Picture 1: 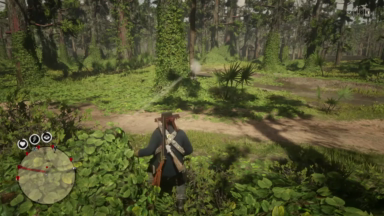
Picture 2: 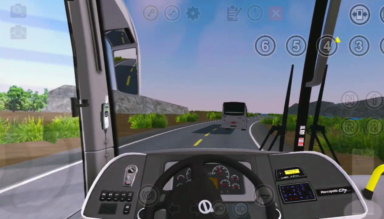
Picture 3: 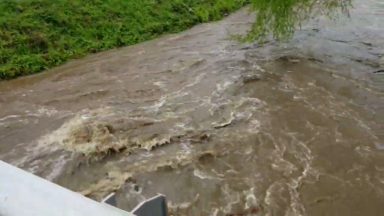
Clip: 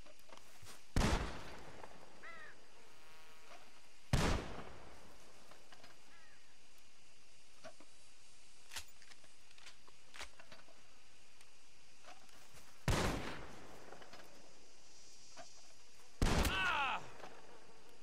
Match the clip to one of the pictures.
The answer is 1